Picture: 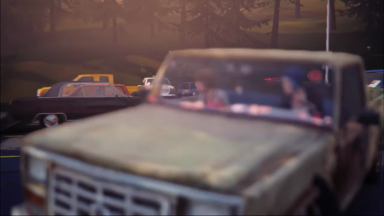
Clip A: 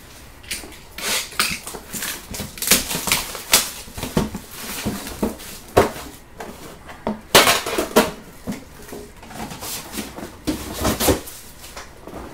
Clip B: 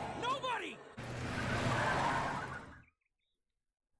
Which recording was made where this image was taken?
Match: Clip B